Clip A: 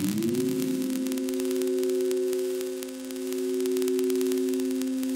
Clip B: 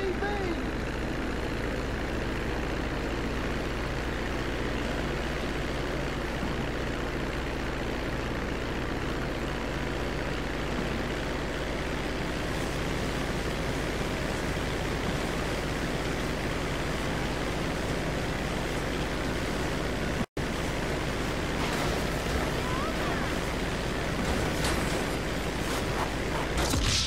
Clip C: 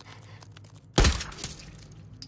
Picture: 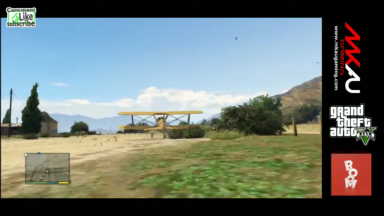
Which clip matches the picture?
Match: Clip B